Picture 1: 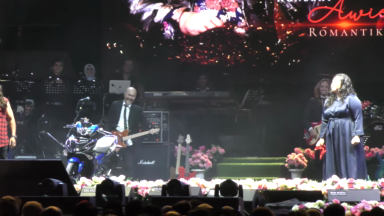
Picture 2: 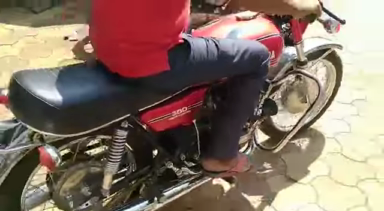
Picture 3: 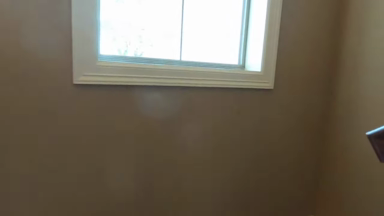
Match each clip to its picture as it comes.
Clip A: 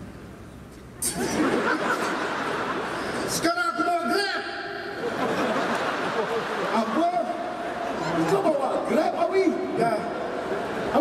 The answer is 1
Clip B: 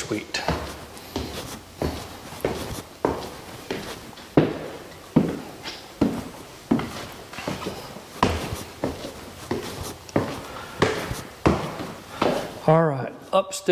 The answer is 3